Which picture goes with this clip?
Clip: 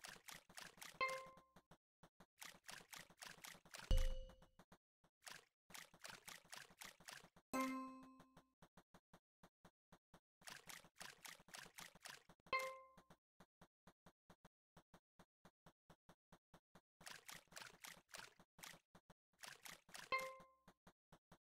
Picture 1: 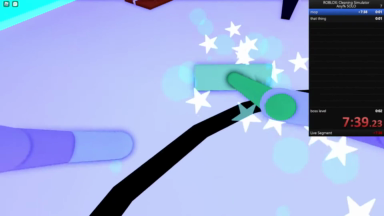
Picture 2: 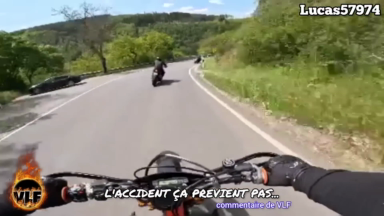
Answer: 1